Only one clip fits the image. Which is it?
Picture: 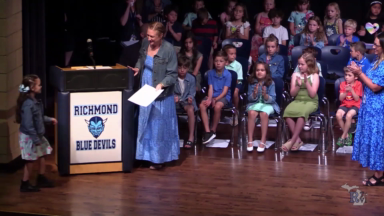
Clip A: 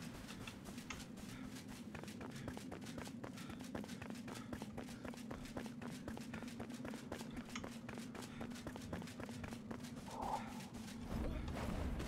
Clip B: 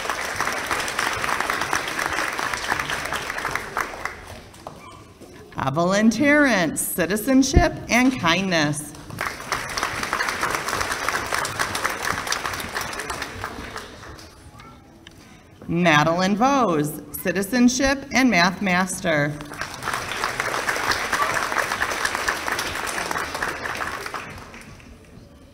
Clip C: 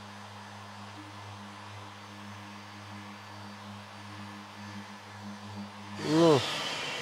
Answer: B